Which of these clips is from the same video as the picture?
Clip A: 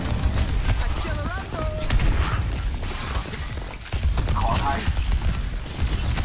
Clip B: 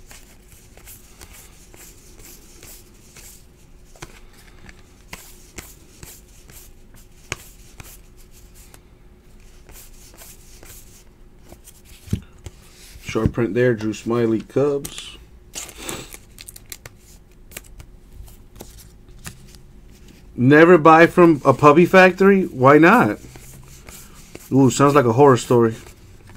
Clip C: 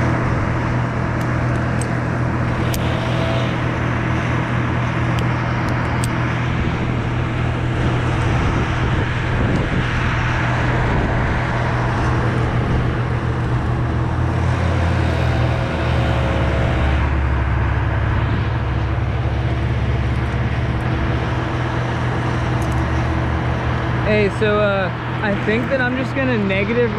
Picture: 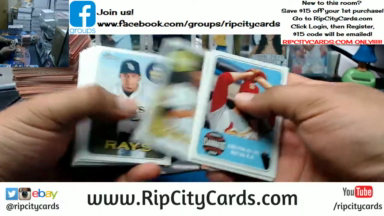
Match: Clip B